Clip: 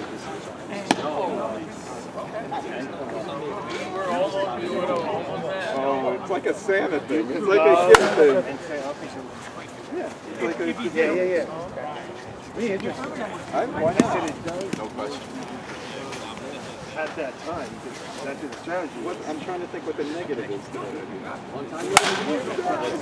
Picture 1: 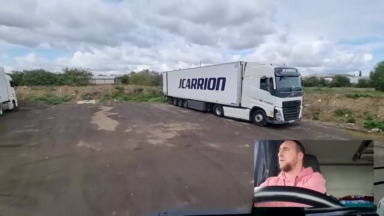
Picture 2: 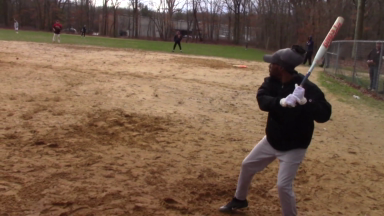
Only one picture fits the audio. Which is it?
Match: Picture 2